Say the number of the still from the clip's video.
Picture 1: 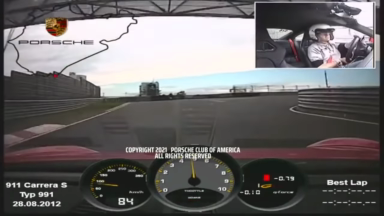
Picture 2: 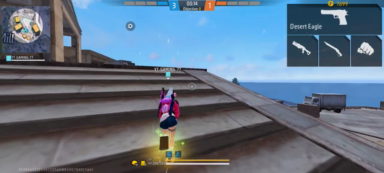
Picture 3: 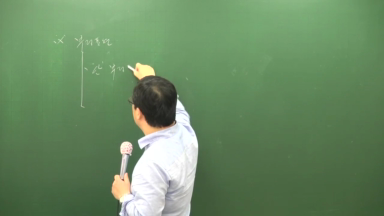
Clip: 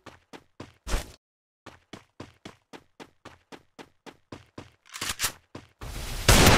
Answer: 2